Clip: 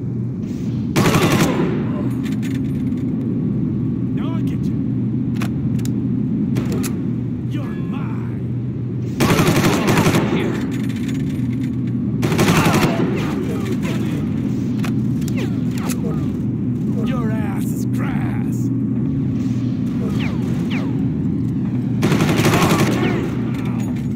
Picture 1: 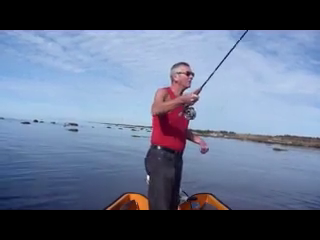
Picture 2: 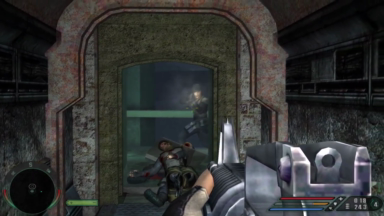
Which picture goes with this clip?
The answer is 2